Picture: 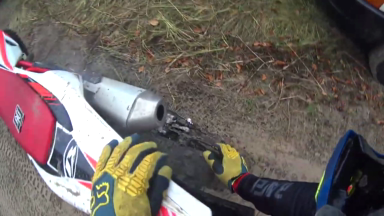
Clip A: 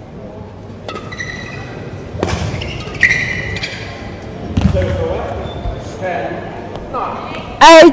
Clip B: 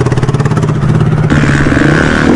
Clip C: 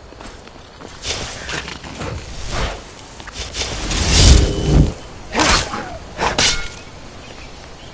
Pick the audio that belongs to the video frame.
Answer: B